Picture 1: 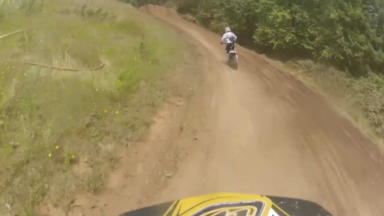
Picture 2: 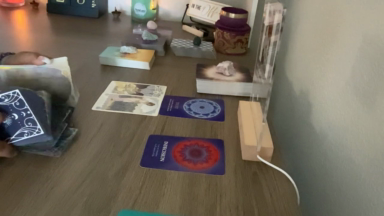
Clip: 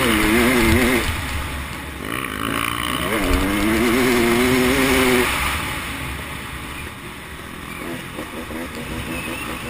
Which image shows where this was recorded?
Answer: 1